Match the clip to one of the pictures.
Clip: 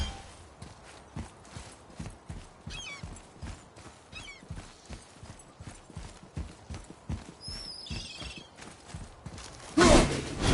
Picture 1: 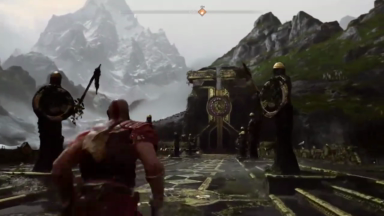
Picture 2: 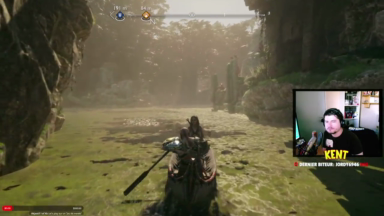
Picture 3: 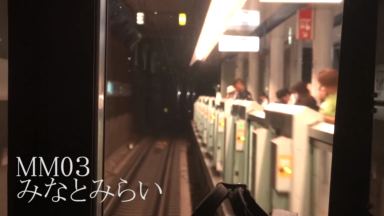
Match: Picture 1